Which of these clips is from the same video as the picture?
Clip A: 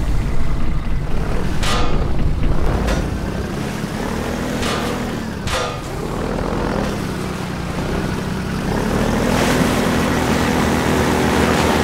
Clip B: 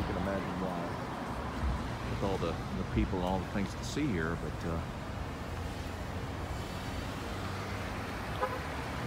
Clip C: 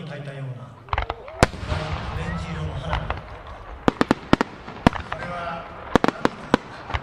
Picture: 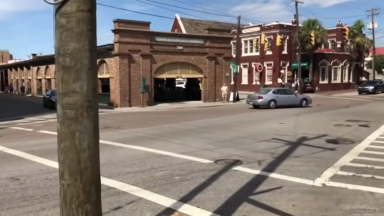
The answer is B